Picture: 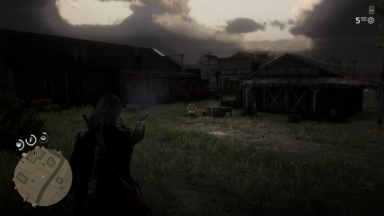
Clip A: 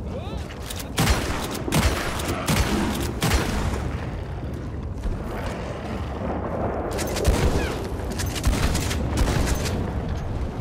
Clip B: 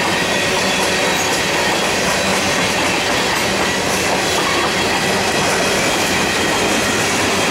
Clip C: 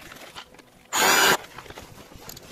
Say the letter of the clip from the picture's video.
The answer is A